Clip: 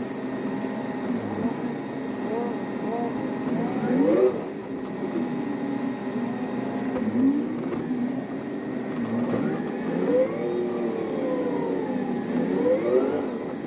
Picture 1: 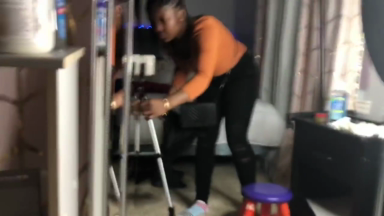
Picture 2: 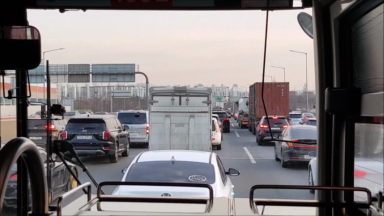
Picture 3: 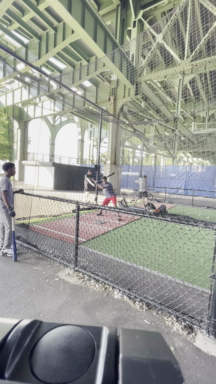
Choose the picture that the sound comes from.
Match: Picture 2